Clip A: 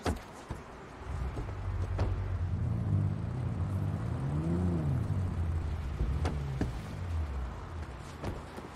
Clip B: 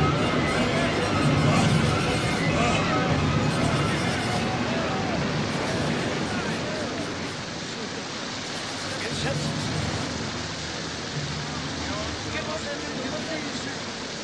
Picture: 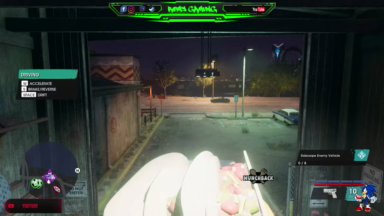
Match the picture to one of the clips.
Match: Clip A